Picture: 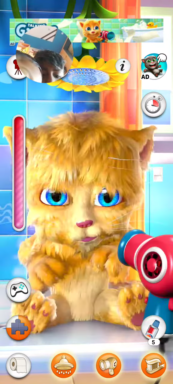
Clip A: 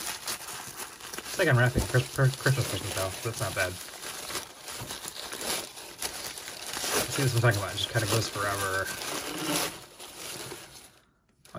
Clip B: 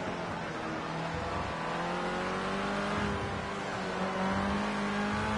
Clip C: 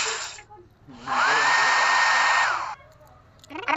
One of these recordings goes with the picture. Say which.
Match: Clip C